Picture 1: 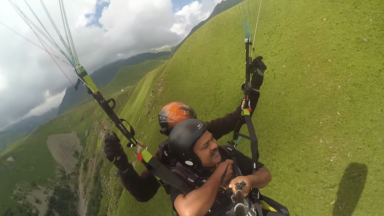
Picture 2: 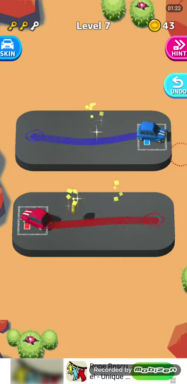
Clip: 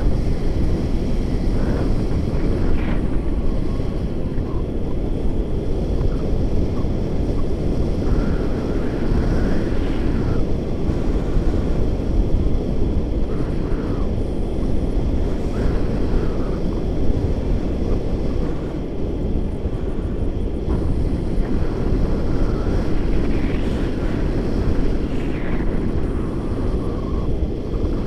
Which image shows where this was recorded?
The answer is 1